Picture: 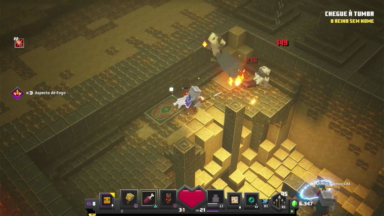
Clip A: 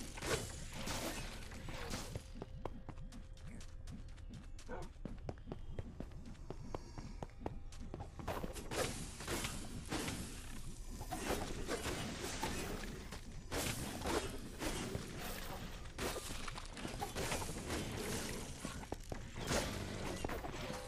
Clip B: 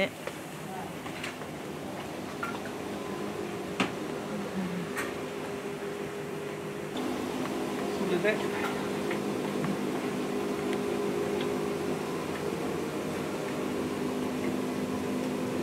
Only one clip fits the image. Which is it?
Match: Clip A